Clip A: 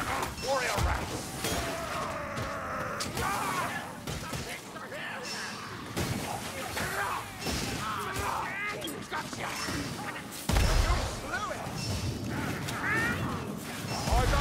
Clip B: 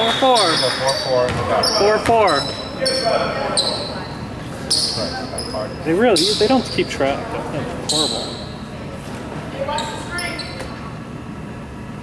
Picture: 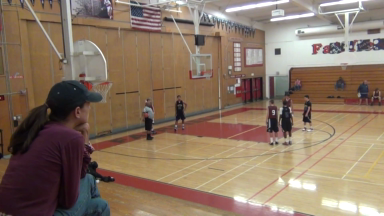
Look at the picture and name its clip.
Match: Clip B